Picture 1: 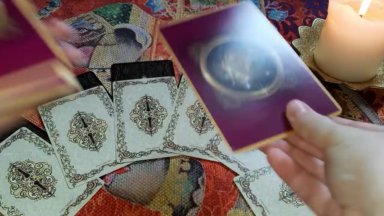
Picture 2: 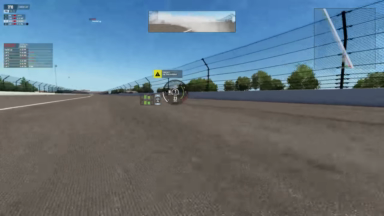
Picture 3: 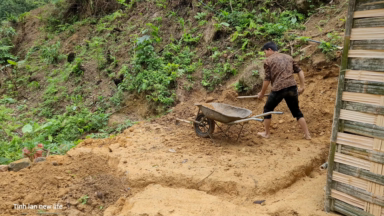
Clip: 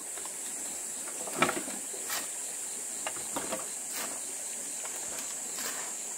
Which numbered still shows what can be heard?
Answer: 3